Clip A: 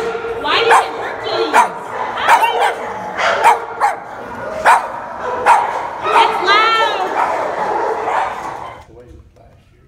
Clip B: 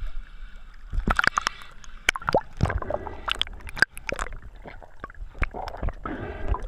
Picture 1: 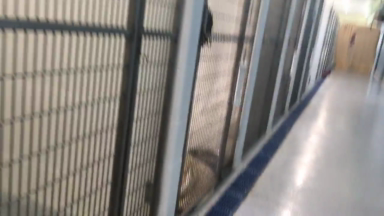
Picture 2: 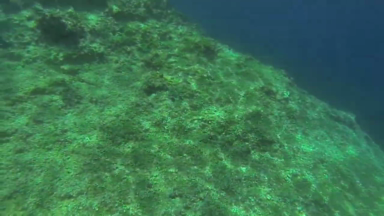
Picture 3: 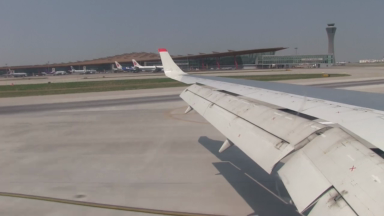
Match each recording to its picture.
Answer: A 1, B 2